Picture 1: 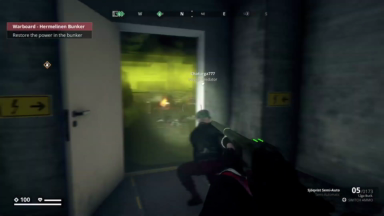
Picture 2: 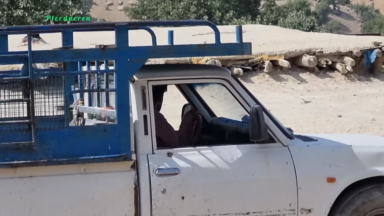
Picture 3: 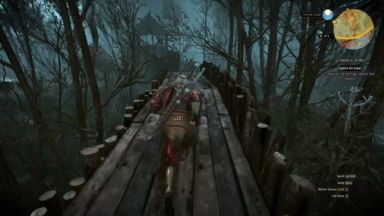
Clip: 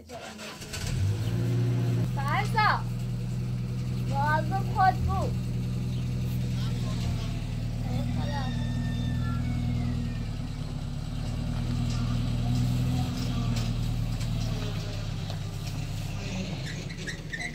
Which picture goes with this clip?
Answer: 2